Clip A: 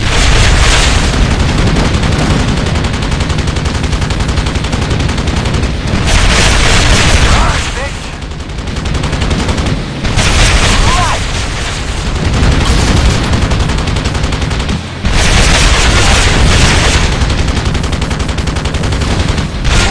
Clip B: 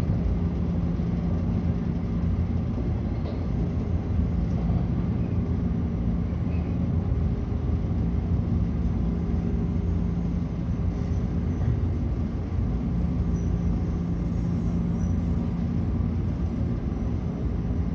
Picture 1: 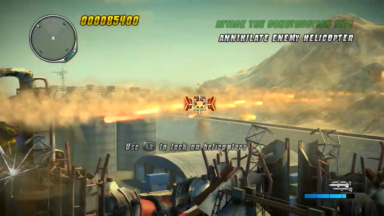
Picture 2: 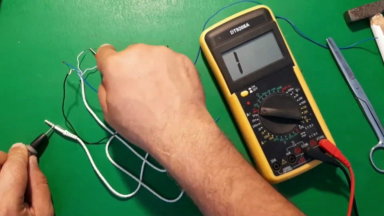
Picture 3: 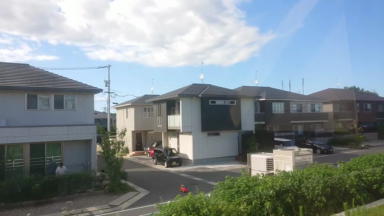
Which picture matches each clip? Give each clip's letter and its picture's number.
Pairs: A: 1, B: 3